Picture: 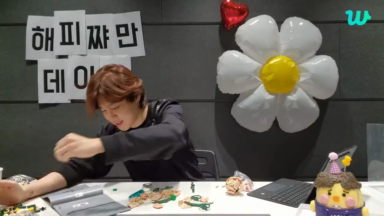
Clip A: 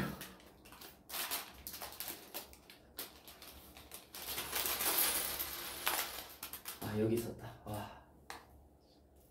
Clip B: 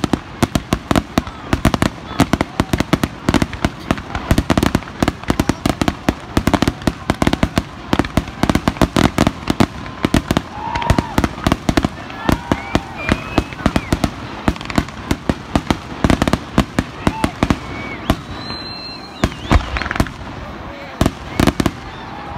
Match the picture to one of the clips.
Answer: A